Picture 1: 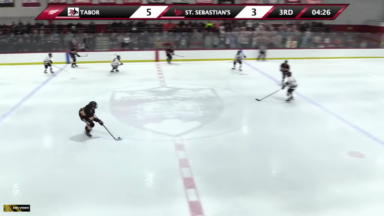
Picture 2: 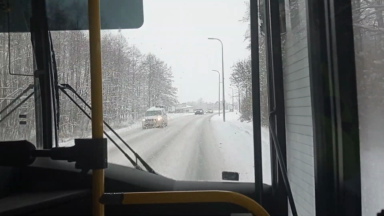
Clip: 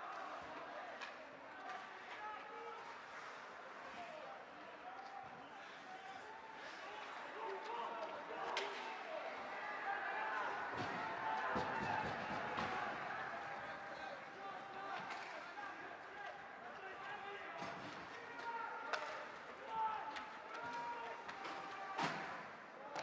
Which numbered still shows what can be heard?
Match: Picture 1